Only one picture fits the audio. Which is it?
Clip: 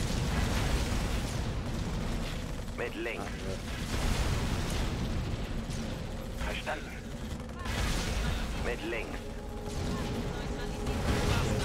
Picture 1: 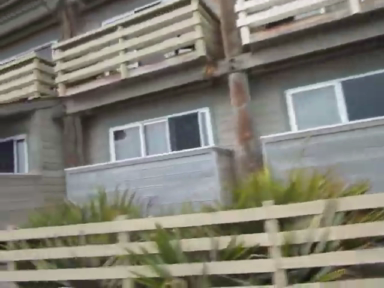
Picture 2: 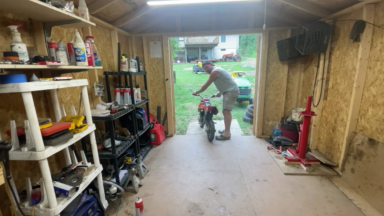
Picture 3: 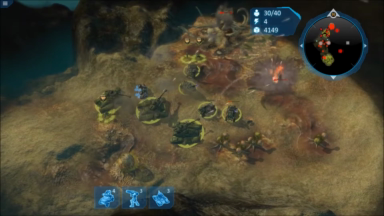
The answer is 3